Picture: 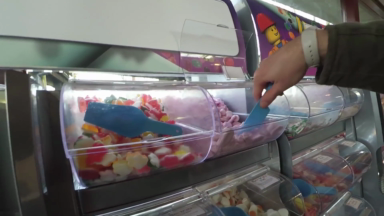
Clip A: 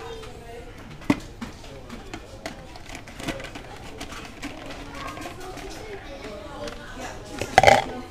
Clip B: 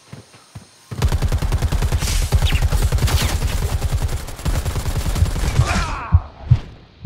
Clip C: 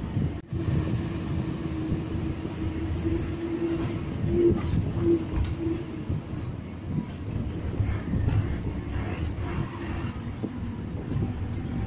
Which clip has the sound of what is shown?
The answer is A